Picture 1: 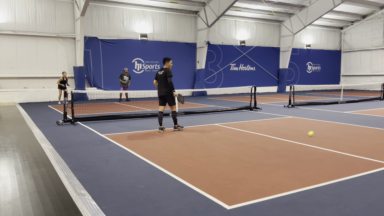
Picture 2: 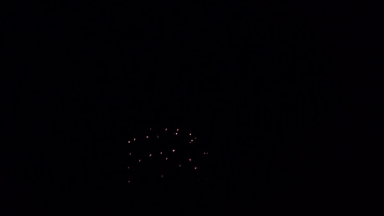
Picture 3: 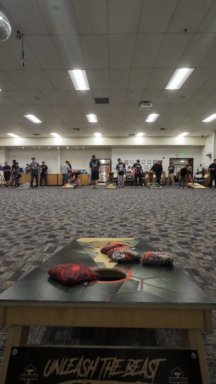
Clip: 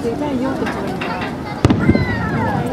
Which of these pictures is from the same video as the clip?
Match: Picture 2